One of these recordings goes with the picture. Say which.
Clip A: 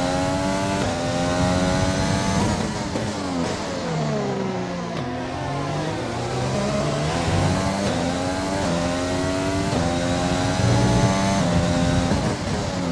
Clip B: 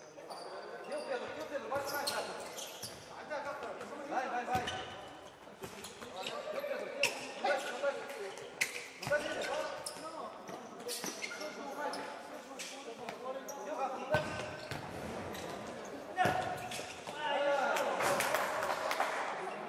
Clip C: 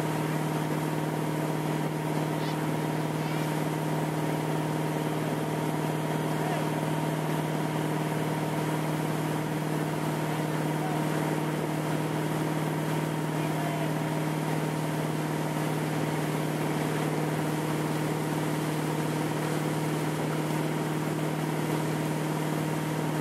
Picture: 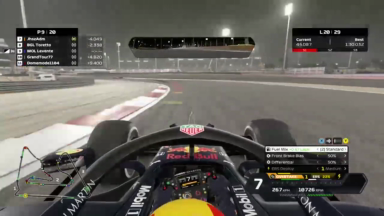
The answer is A